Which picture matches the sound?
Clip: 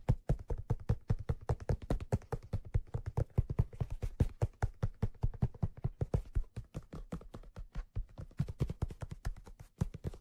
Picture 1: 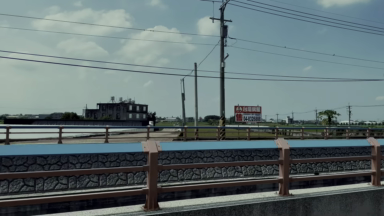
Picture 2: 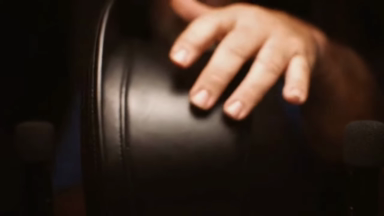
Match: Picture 2